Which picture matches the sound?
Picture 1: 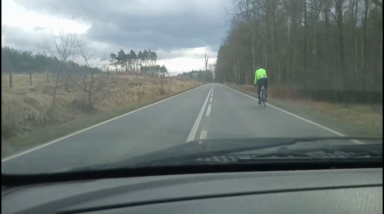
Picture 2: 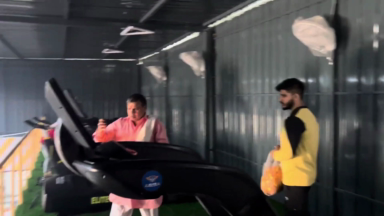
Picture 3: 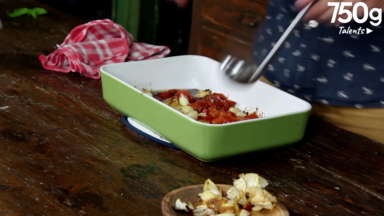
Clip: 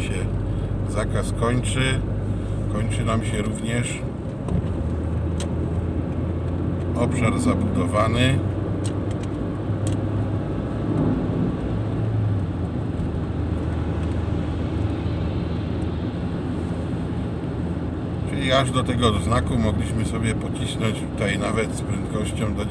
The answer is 1